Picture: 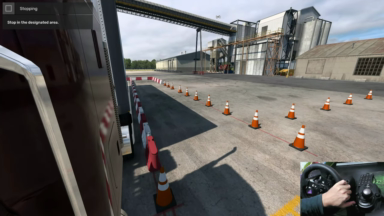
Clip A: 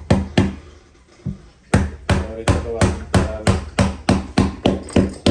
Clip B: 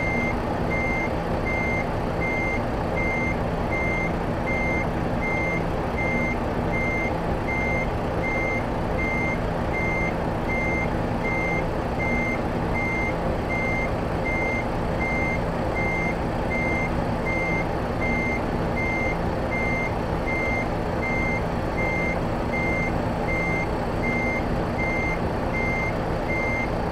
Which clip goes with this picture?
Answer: B